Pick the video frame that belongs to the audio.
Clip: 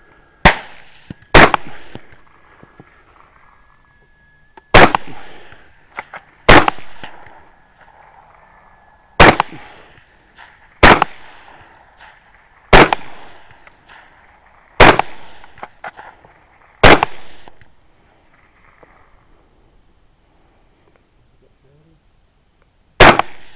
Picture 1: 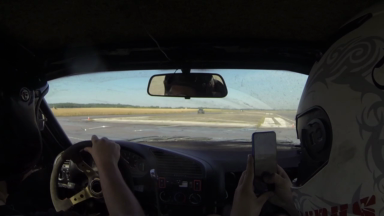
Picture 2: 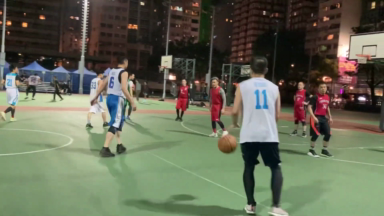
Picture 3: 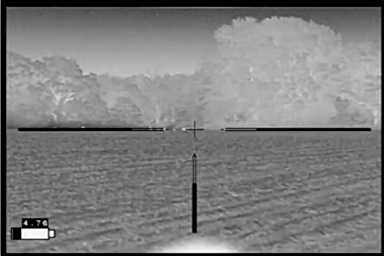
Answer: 3